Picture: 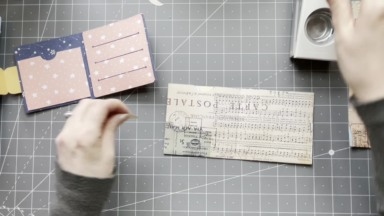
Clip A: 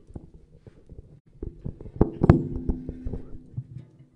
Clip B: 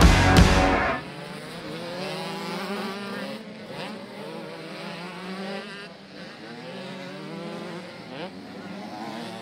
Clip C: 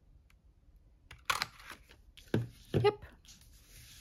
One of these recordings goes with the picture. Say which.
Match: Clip C